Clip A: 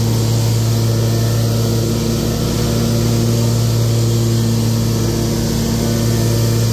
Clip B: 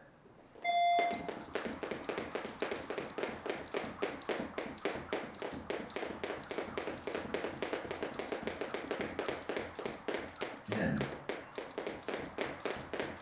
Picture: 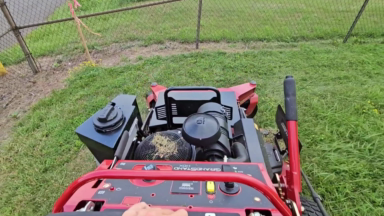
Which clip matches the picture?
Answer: A